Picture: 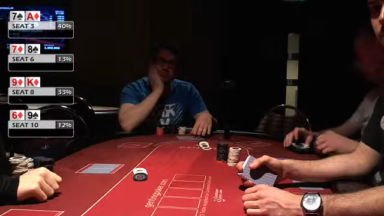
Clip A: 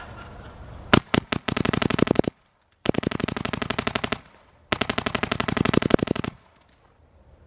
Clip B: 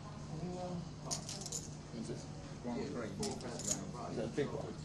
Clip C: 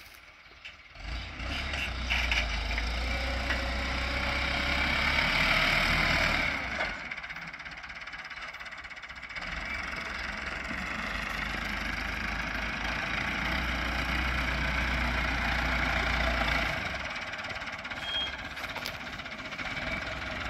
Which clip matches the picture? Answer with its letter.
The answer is B